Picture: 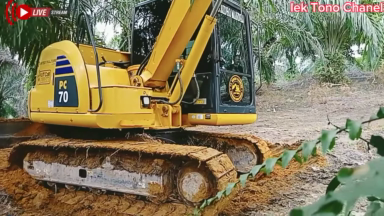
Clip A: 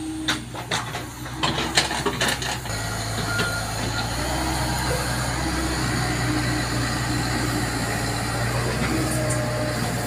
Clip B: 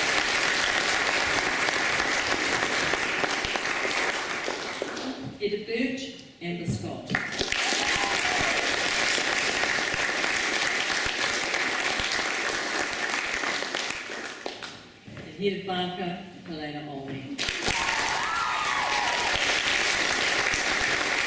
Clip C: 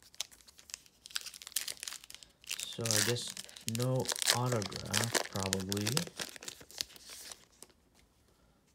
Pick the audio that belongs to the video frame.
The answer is A